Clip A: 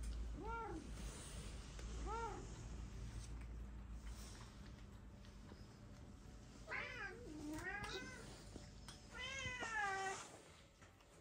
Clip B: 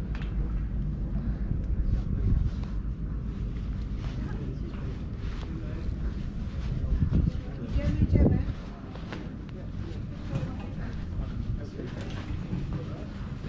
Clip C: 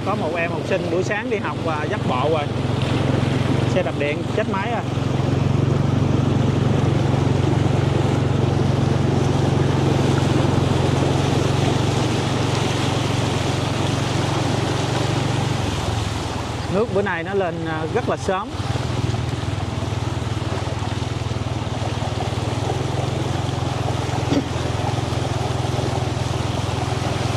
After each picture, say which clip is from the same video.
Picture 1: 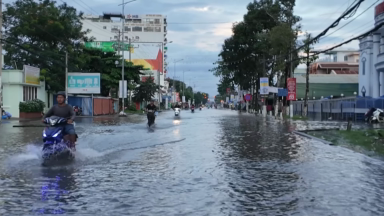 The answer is C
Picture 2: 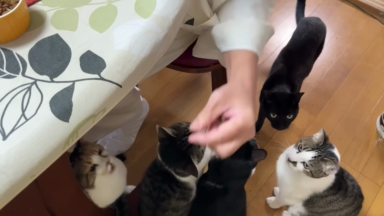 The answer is A